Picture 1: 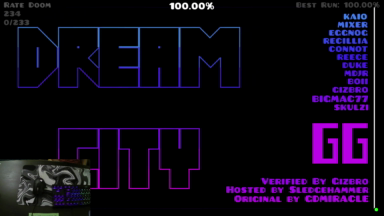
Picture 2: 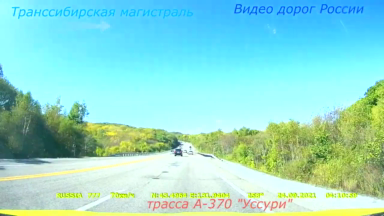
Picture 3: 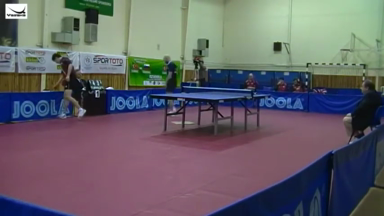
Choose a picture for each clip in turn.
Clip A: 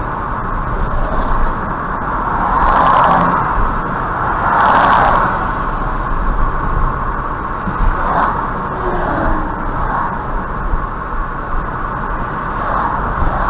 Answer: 2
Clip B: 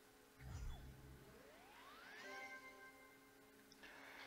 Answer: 1